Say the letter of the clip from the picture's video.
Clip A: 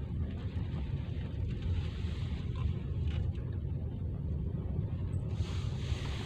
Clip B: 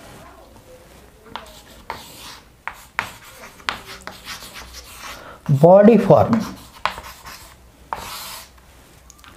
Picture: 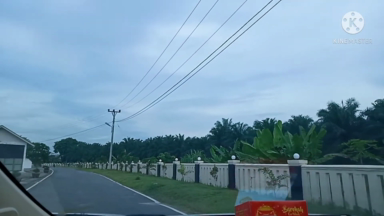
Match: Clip A